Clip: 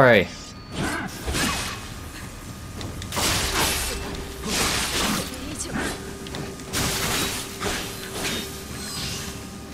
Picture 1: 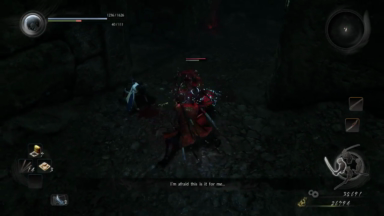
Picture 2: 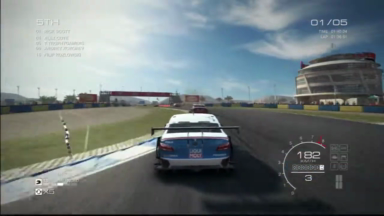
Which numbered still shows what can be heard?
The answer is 1